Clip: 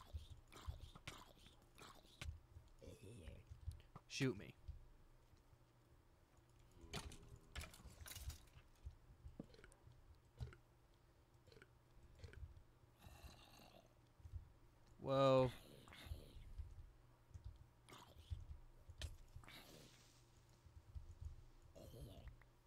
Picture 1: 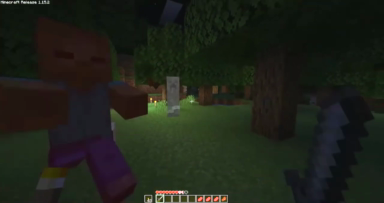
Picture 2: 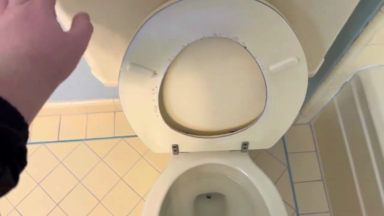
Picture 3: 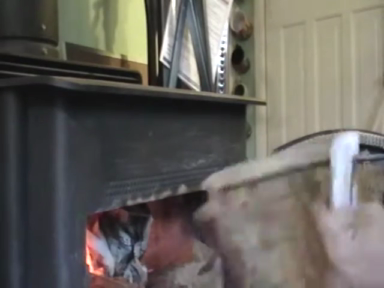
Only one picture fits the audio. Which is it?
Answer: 1